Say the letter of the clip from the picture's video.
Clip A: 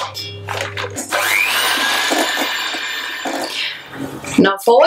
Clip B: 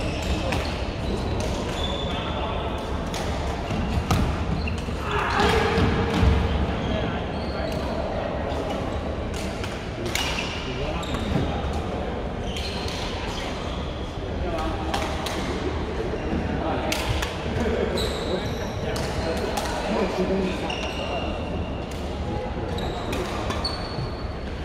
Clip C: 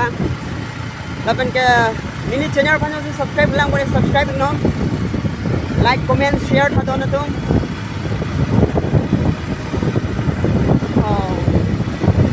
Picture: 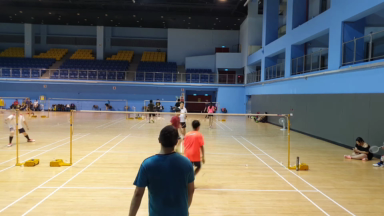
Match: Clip B